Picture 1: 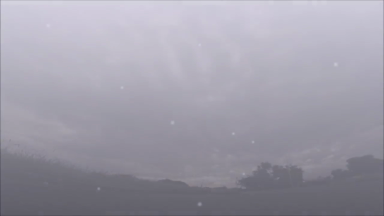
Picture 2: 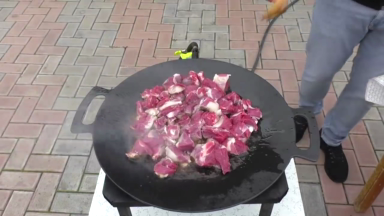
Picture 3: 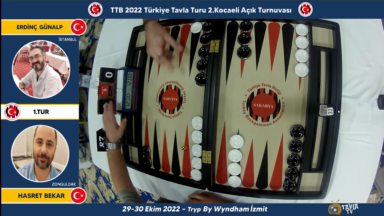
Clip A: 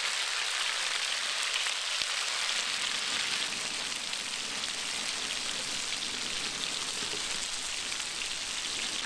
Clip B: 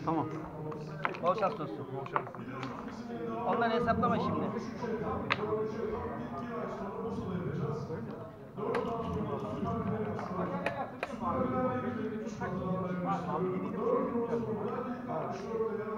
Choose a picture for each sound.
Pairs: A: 2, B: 3